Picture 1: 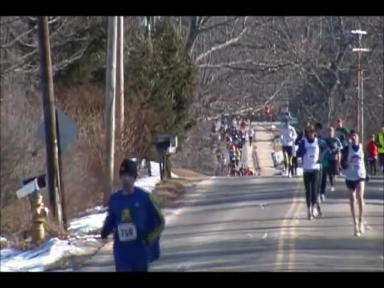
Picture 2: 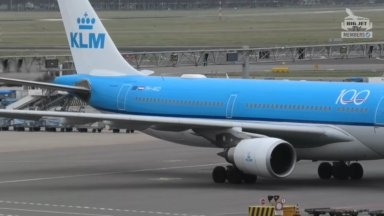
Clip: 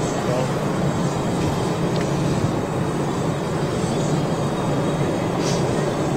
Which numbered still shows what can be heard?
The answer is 2